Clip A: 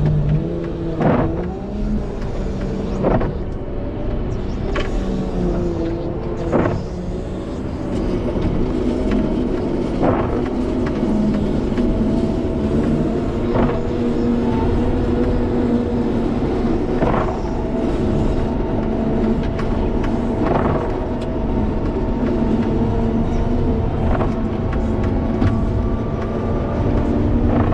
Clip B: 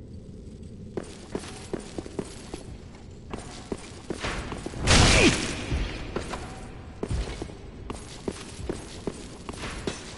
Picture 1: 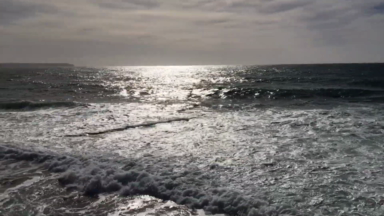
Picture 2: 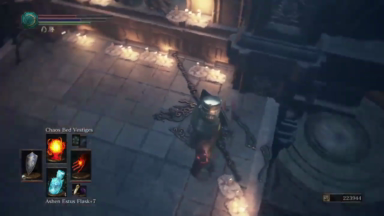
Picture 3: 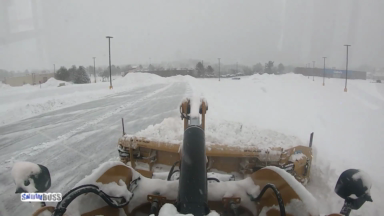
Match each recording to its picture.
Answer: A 3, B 2